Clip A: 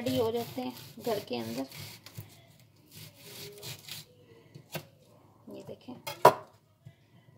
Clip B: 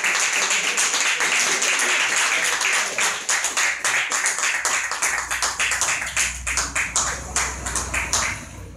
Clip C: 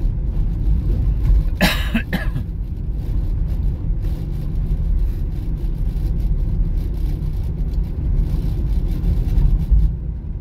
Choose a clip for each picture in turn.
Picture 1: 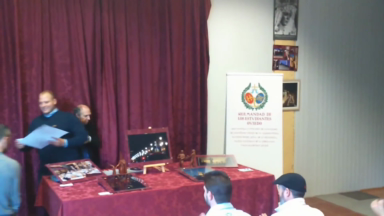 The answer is B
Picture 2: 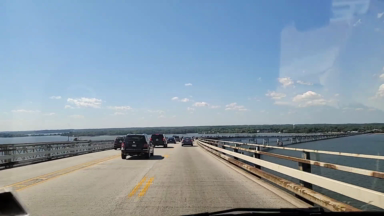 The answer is C